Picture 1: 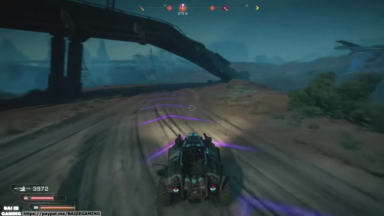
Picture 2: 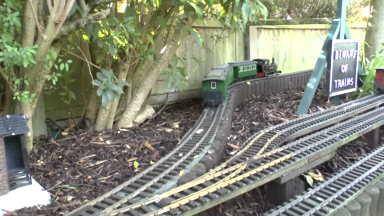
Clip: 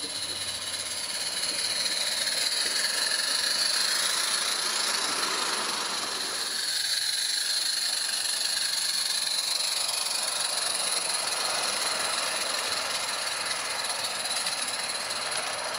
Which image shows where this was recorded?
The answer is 2